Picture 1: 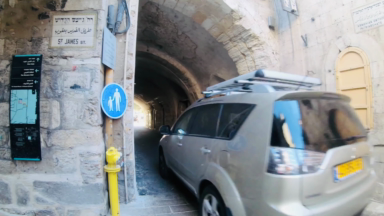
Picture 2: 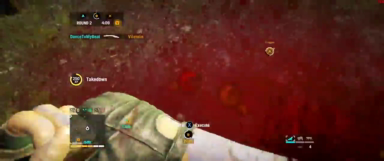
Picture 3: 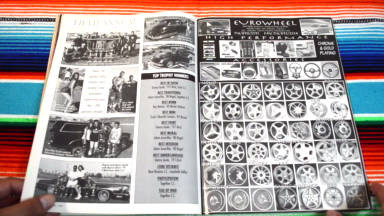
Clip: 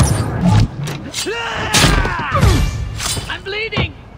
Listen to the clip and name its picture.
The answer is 2